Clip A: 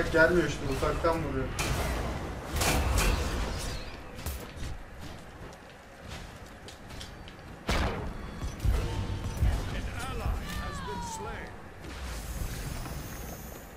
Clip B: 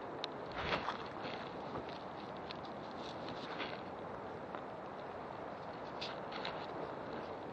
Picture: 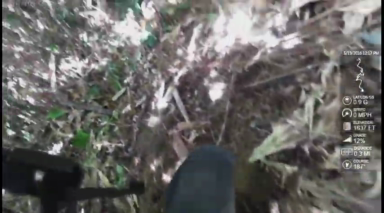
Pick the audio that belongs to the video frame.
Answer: B